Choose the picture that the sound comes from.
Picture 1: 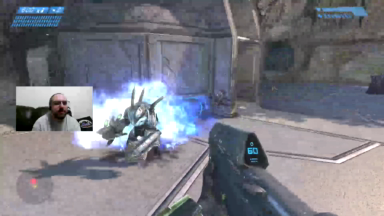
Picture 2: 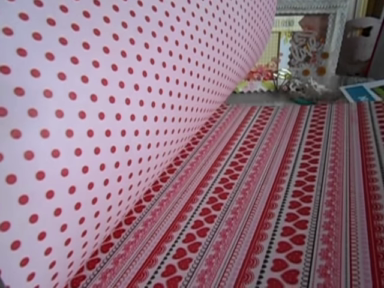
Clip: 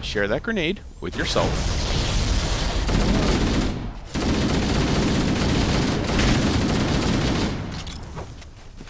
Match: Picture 1